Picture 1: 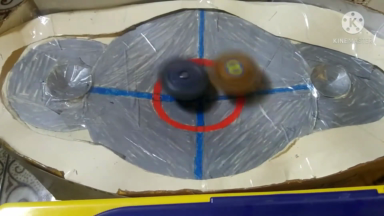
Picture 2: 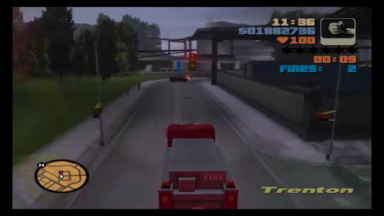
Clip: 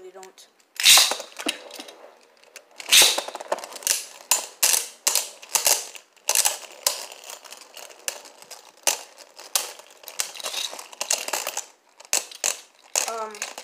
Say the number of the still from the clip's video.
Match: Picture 1